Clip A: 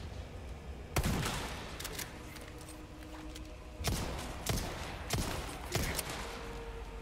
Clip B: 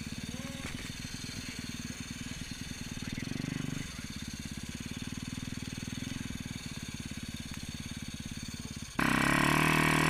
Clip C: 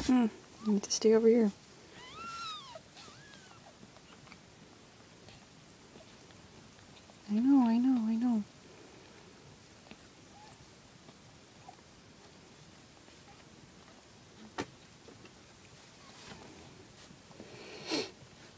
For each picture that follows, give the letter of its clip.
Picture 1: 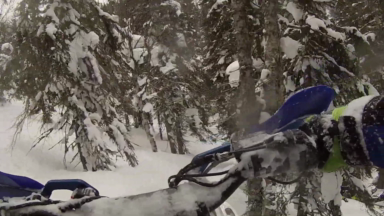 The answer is B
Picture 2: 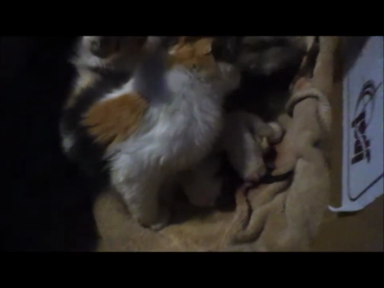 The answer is C